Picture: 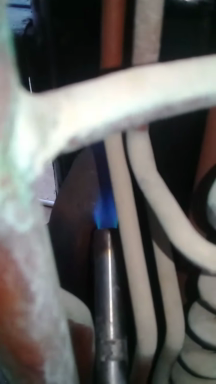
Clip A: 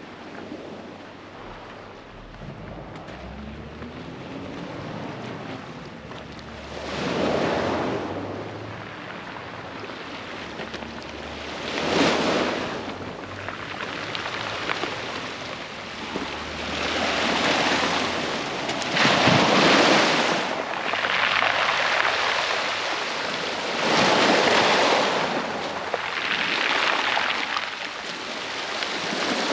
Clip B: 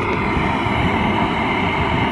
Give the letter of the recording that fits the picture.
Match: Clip B